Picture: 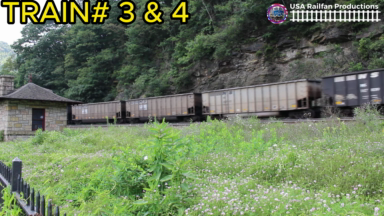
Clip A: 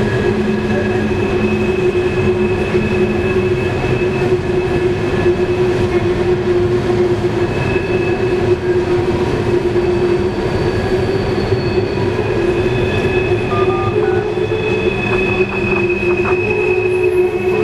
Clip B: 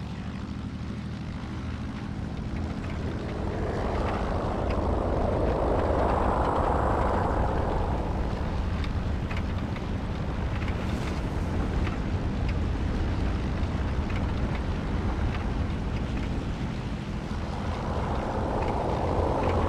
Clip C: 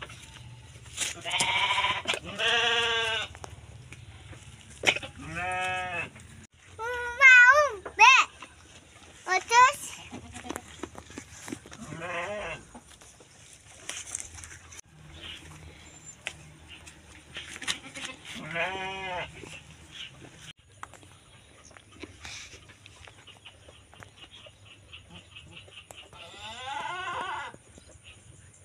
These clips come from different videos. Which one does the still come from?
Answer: A